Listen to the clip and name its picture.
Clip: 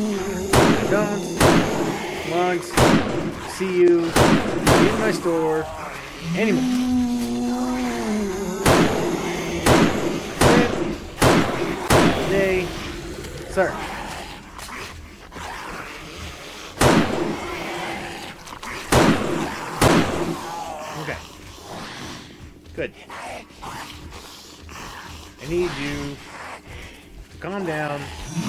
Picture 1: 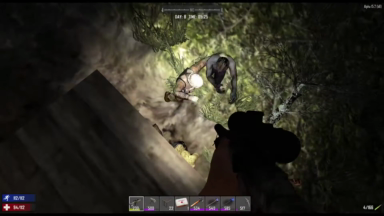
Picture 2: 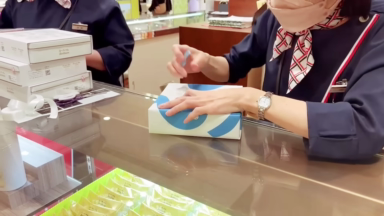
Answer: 1